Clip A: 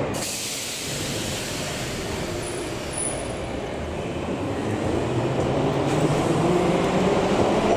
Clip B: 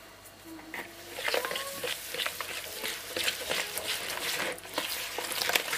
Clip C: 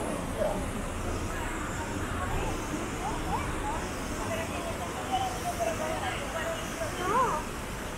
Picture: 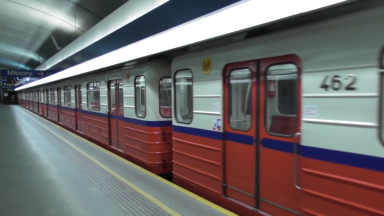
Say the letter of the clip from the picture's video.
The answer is A